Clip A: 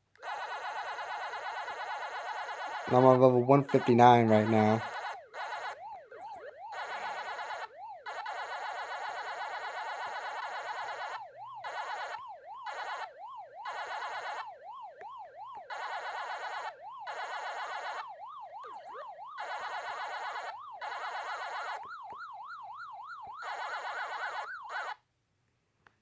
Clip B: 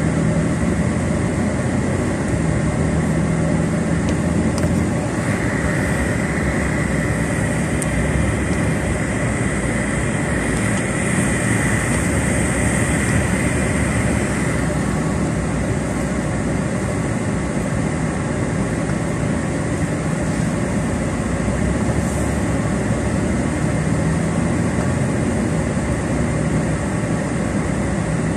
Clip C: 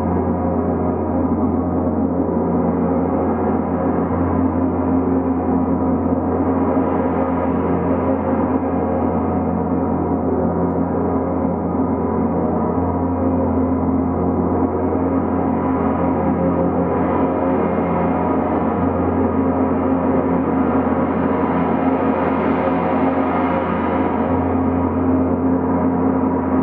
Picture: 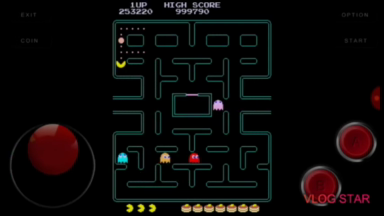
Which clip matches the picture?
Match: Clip A